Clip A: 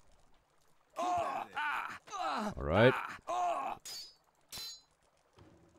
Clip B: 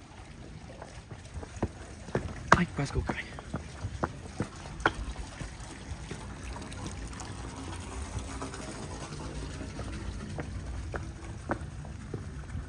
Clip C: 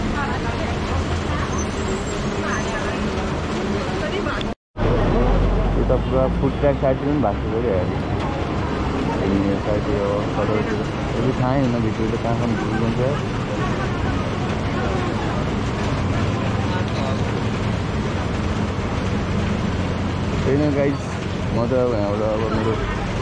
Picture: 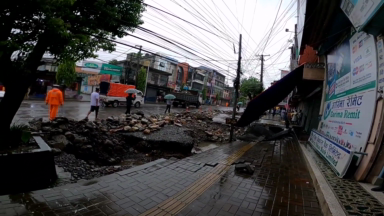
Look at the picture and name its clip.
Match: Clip C